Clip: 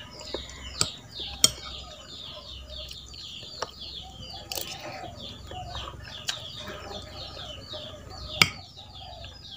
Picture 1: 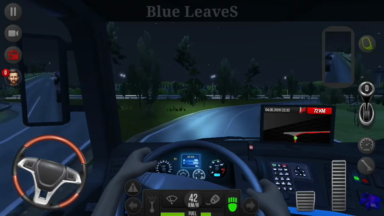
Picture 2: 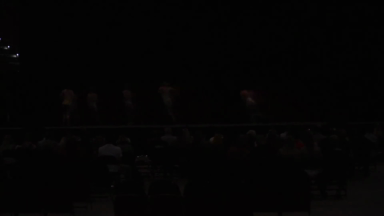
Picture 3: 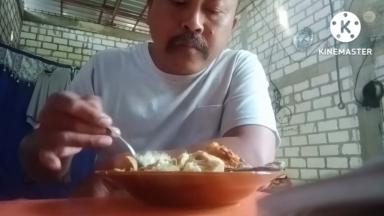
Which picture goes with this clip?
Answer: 3